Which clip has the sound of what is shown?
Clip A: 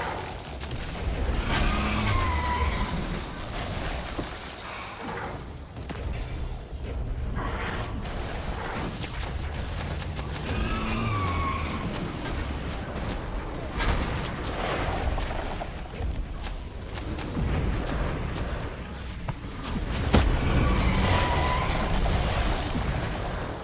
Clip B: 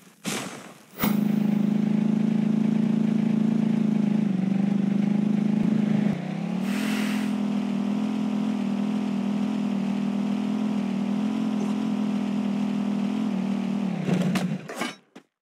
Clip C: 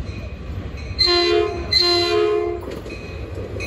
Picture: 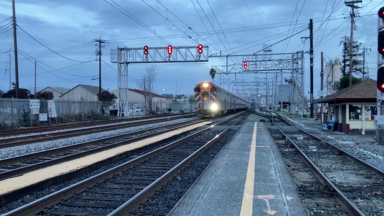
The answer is C